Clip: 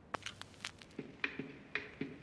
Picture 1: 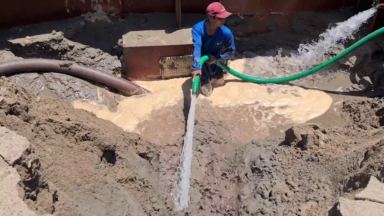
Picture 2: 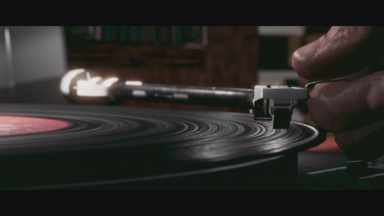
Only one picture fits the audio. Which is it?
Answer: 2